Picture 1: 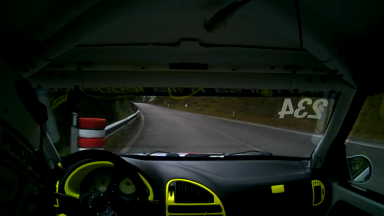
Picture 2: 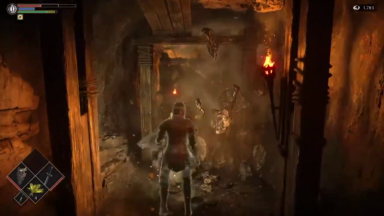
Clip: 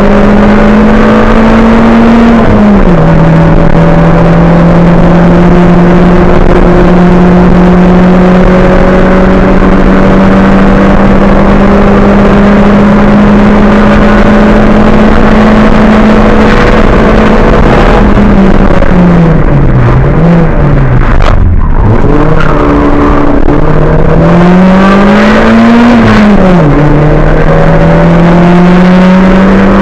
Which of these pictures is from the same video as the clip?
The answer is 1